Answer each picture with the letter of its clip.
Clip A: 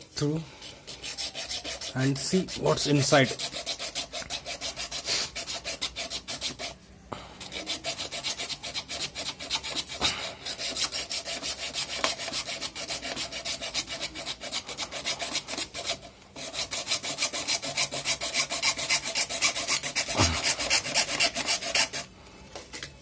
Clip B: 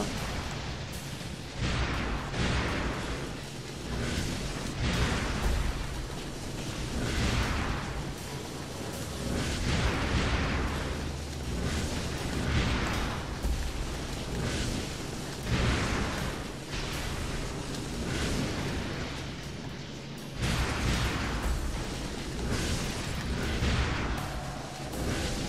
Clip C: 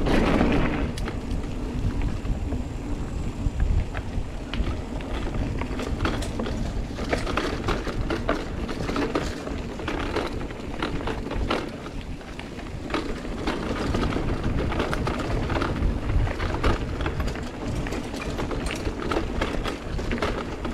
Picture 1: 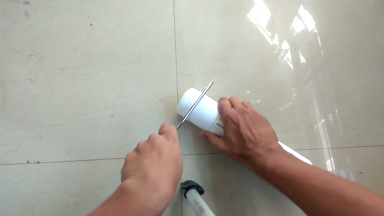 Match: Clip A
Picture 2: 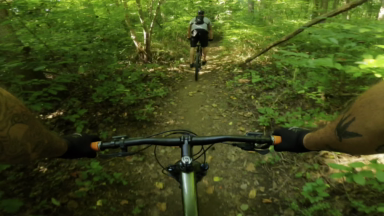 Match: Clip C